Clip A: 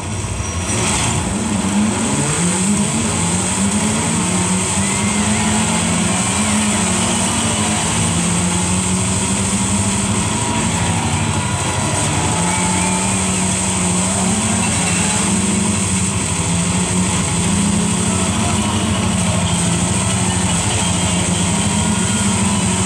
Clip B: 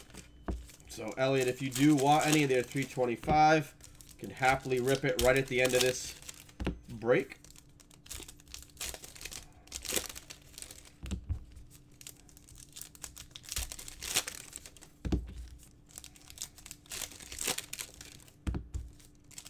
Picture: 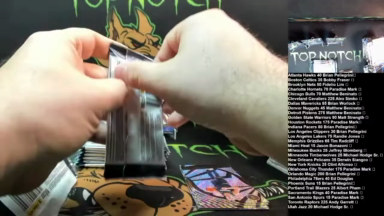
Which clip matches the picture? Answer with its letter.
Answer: B